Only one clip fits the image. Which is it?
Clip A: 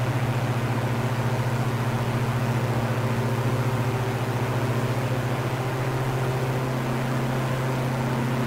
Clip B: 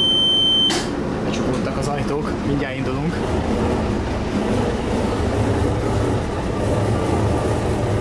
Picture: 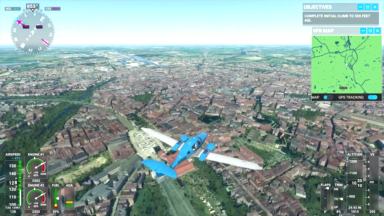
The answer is A